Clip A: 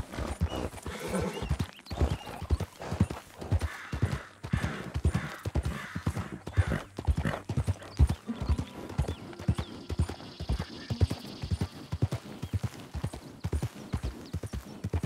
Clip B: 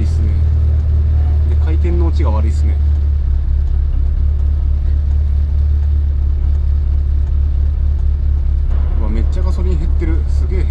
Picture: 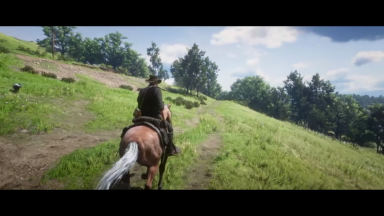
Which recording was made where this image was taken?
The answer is A